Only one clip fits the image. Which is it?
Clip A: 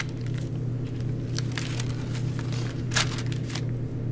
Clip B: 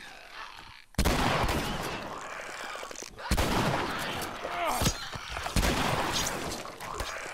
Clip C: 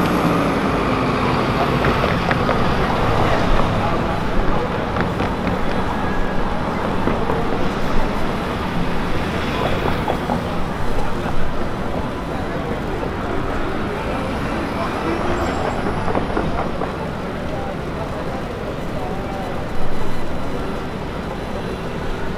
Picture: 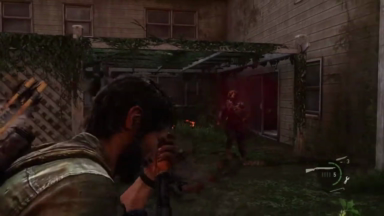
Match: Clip B